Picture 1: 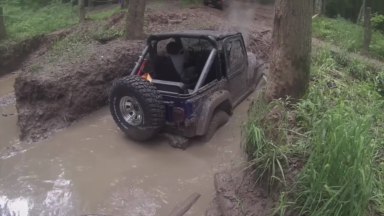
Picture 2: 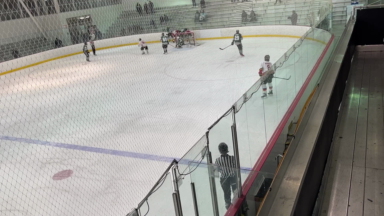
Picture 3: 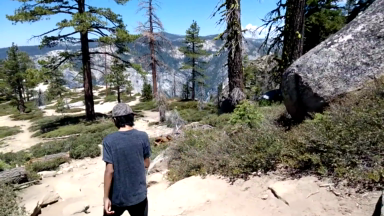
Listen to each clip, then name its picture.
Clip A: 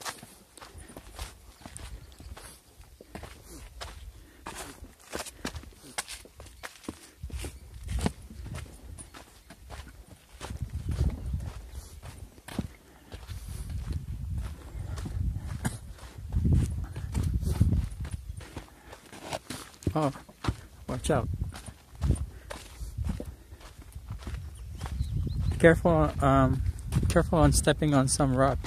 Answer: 3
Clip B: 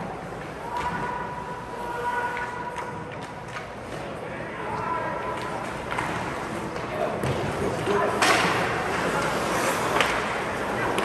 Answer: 2